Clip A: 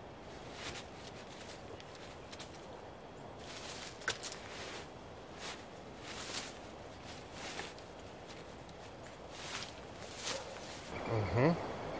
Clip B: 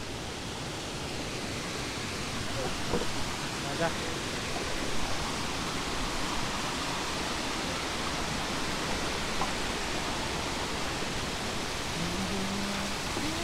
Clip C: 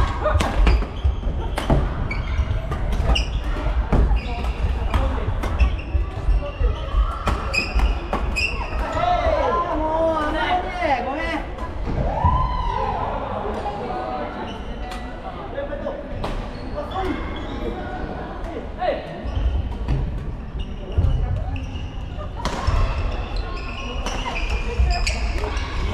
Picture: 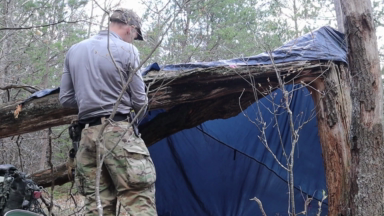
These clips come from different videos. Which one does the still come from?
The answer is A